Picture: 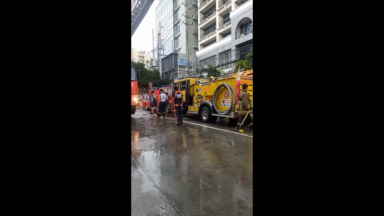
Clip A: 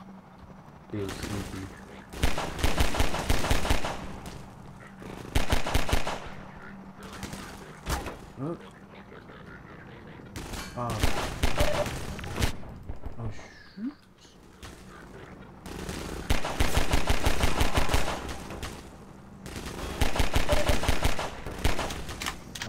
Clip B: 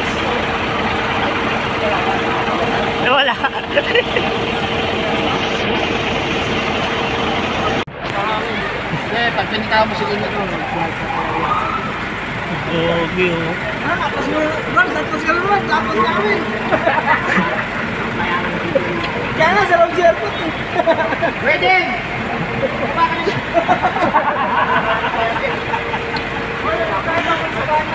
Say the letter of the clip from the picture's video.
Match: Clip B